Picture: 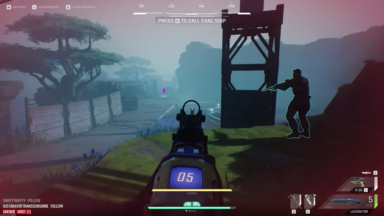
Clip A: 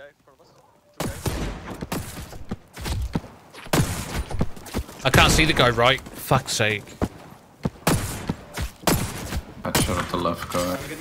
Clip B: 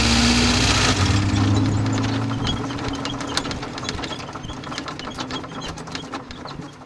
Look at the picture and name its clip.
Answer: A